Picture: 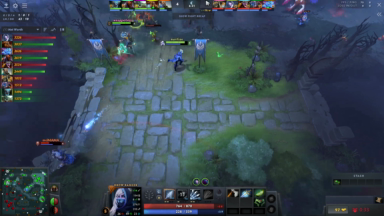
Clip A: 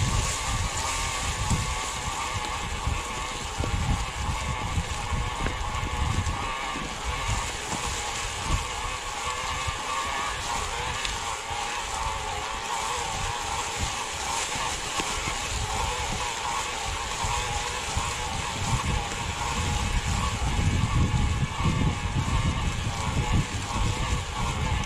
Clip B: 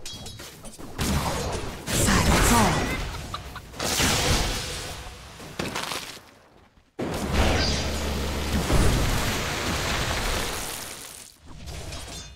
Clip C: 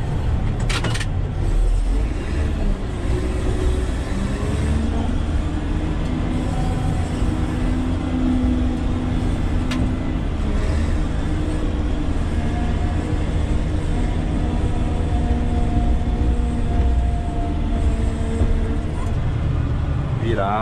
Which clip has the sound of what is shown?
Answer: B